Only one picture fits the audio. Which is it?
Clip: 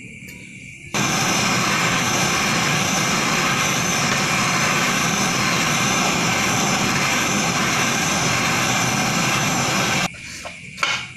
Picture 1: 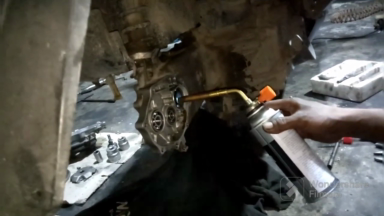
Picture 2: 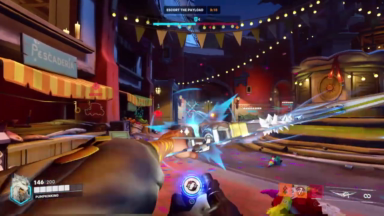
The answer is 1